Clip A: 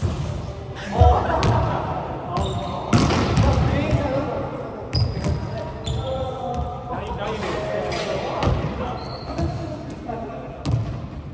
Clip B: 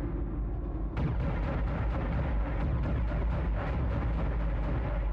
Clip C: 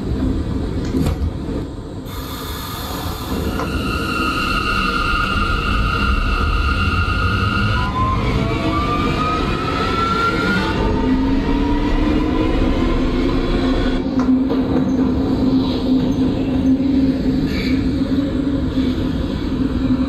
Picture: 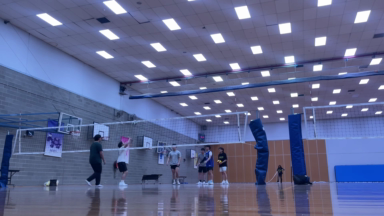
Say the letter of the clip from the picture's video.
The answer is A